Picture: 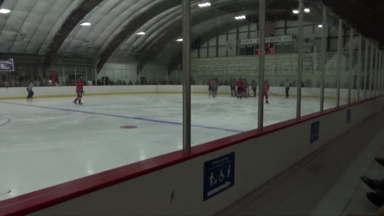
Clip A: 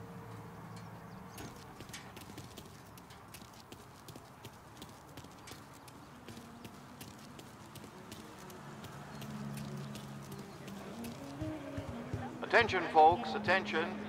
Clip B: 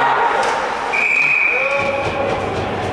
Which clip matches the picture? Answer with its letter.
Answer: B